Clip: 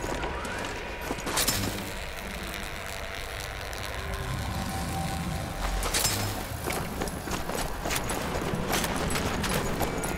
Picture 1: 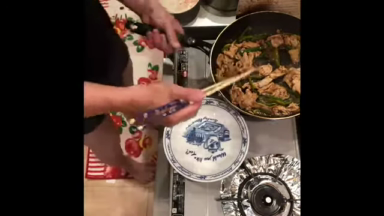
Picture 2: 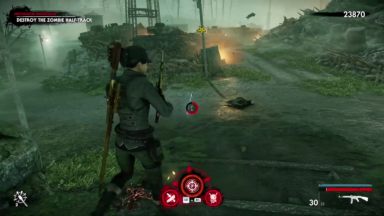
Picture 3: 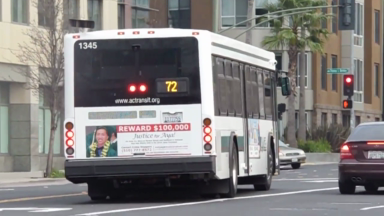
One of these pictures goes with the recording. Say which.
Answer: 2